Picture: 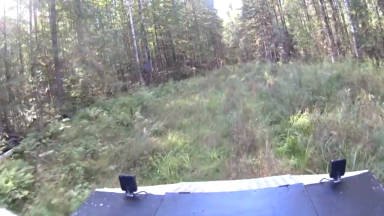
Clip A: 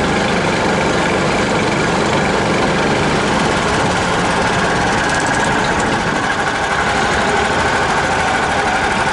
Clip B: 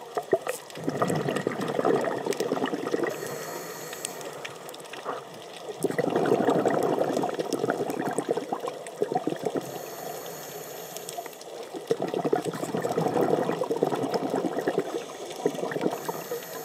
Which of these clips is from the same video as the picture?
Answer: A